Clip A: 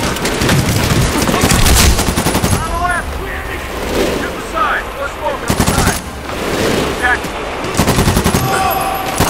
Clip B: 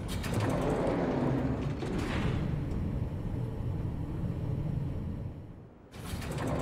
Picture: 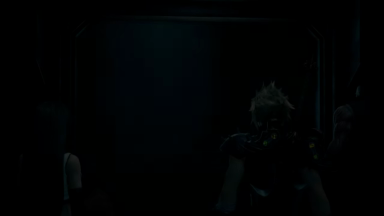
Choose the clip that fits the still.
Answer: B